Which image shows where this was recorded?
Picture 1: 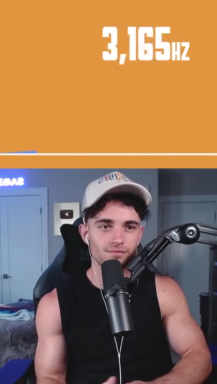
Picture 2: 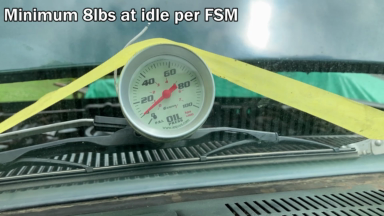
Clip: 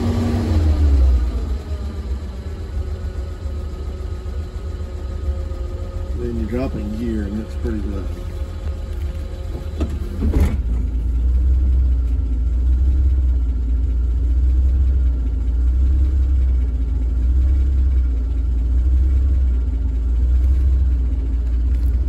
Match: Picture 2